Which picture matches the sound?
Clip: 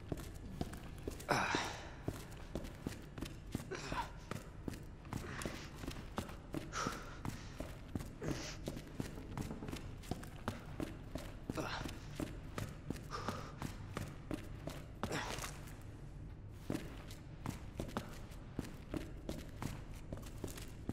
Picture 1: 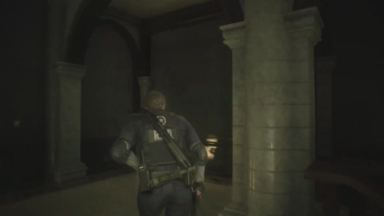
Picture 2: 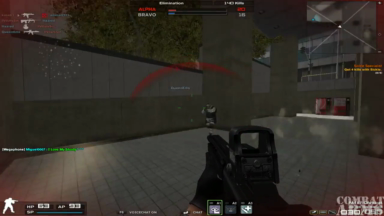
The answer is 1